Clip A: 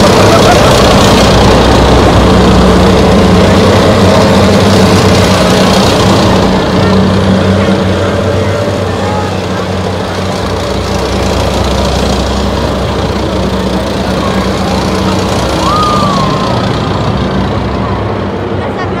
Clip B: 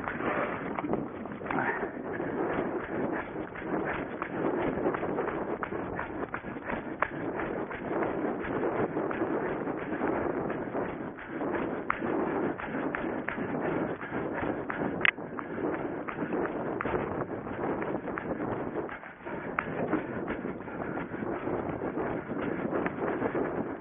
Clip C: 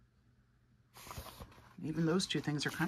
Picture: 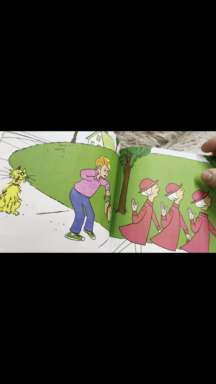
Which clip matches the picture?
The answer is C